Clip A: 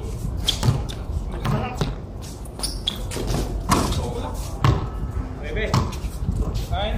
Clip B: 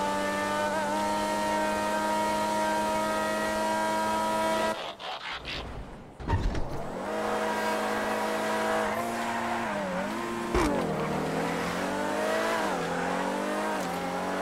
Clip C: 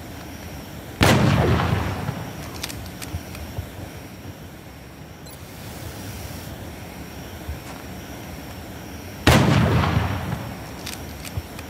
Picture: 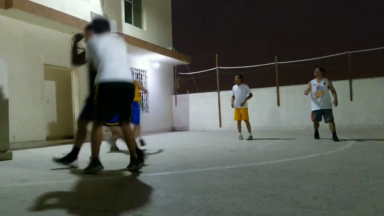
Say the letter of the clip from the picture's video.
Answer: A